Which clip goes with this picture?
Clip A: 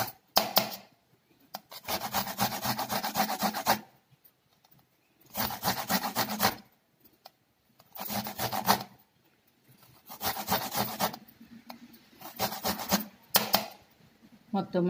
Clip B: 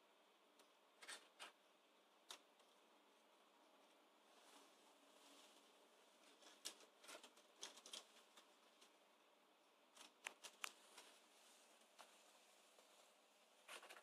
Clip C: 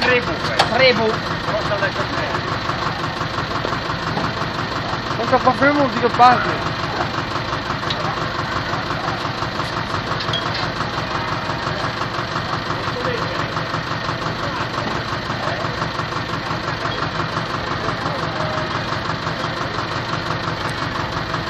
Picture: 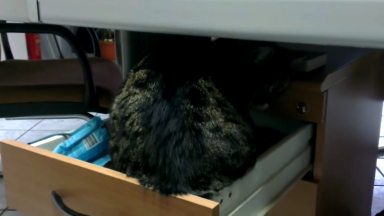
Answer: B